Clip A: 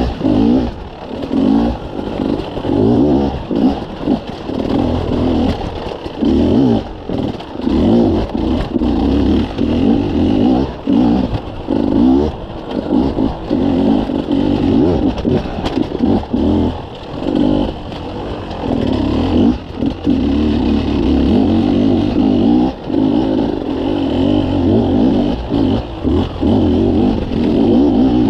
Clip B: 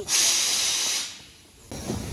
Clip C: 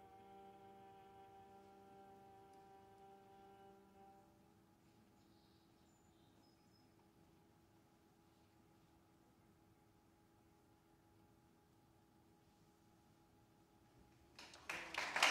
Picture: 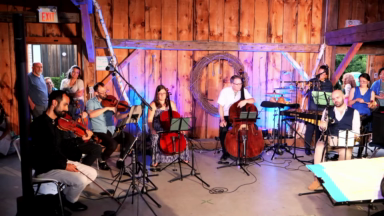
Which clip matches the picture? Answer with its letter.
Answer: C